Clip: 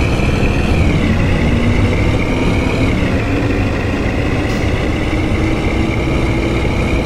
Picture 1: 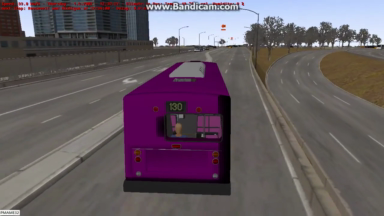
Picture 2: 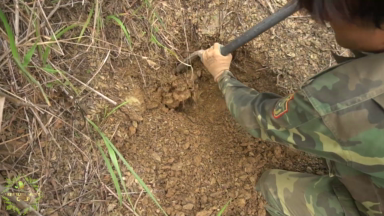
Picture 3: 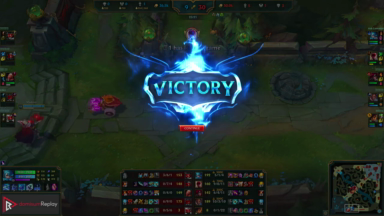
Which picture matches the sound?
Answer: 1